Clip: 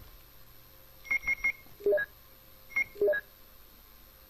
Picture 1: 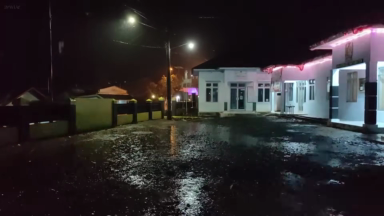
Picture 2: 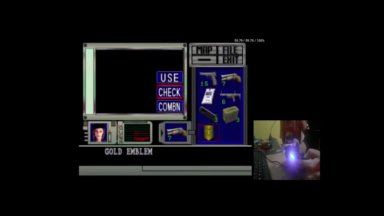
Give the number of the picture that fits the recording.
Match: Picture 2